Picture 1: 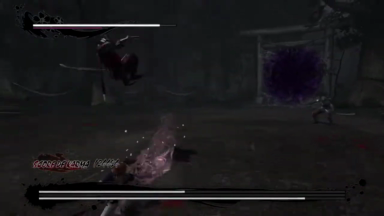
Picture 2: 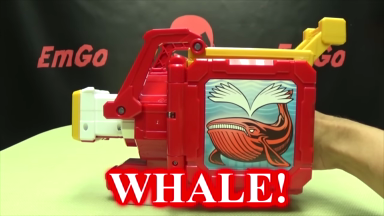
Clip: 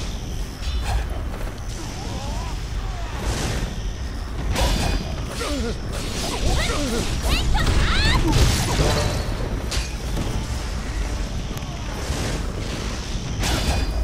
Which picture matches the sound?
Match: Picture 1